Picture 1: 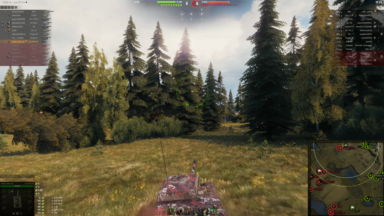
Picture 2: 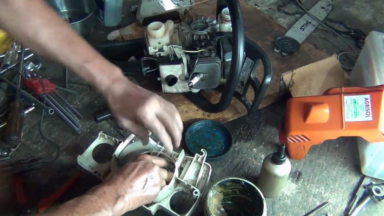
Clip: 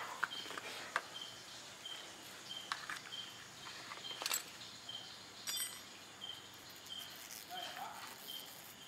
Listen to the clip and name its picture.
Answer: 2